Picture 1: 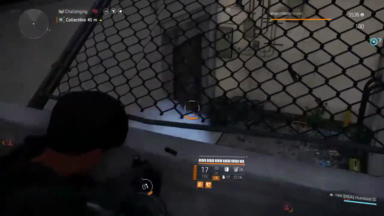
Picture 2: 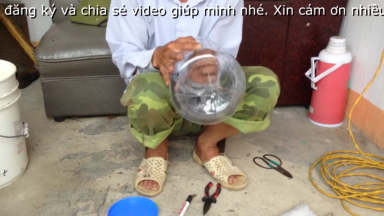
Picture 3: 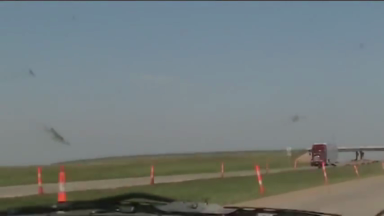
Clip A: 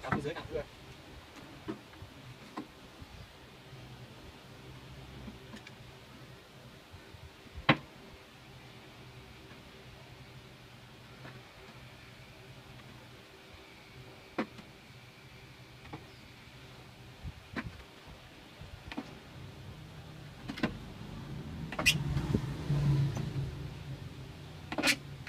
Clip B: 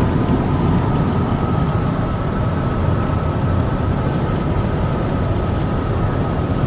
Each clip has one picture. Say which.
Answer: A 2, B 3